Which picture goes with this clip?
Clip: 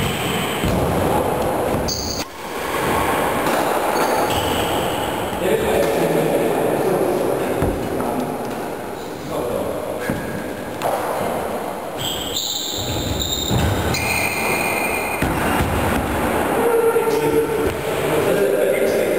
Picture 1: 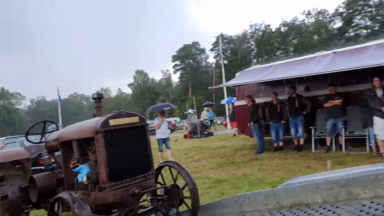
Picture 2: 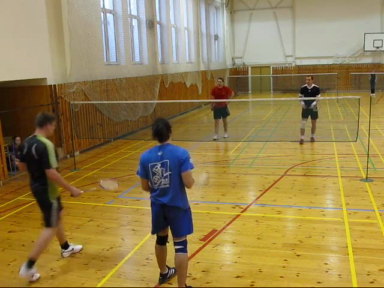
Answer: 2